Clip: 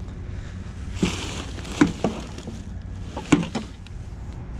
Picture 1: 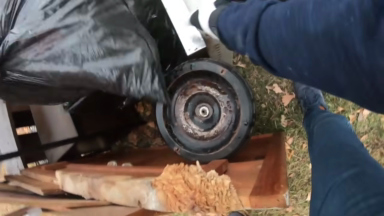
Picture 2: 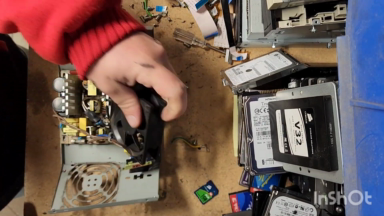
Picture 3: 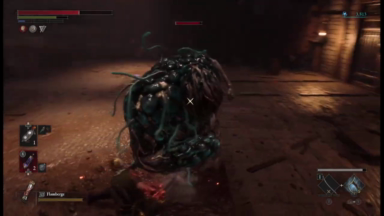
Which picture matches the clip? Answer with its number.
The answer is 1